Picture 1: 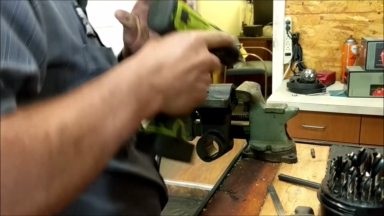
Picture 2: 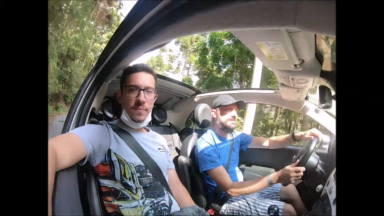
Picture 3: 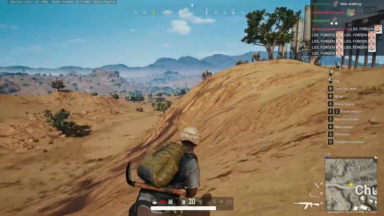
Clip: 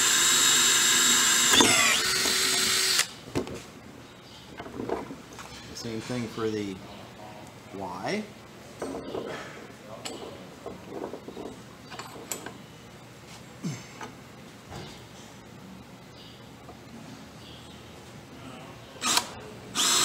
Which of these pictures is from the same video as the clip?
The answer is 1